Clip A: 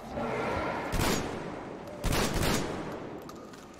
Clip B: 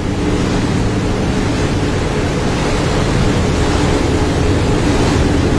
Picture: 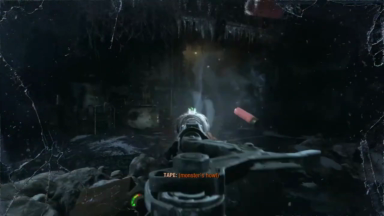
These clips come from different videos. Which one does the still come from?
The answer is A